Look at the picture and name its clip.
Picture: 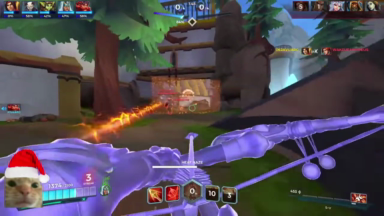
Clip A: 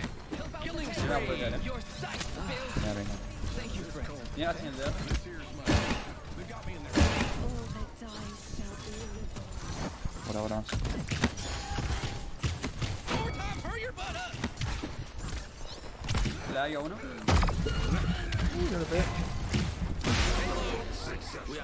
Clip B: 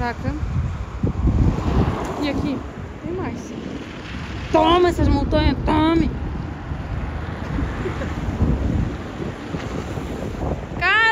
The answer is A